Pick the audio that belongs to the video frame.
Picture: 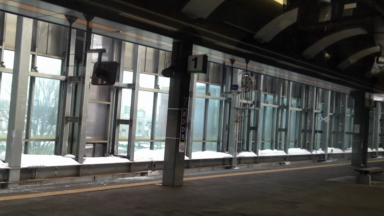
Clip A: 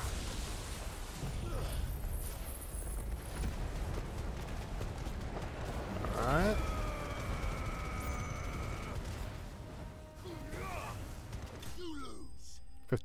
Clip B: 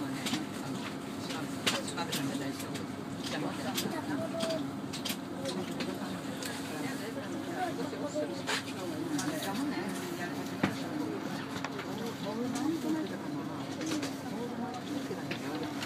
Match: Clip B